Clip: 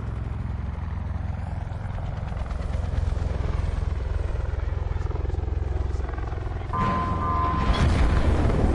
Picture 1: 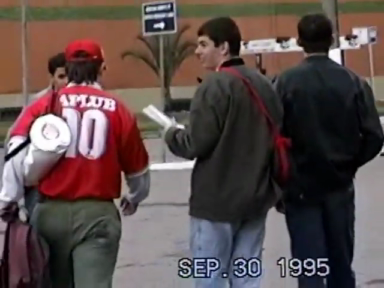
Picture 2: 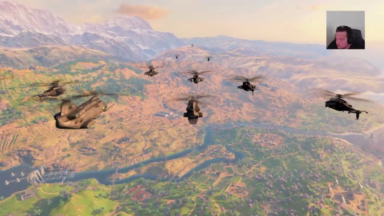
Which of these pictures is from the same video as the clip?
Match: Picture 2